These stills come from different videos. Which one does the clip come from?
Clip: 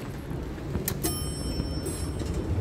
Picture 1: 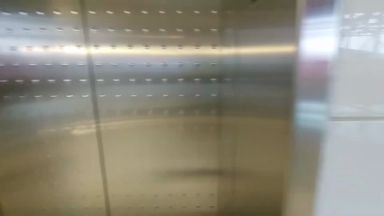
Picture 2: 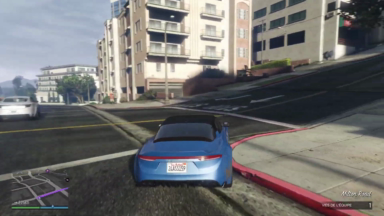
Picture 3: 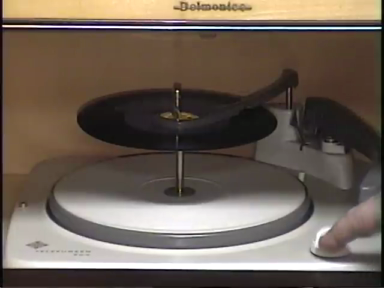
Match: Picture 1